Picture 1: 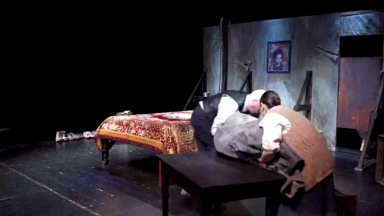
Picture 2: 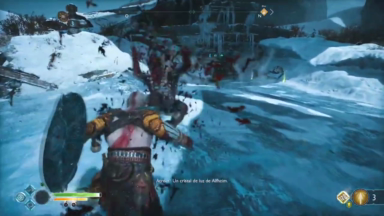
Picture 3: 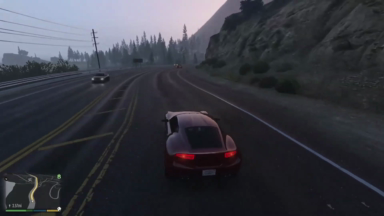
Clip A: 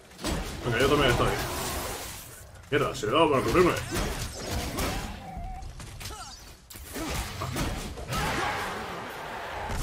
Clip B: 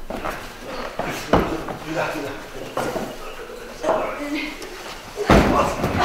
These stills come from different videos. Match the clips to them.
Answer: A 2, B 1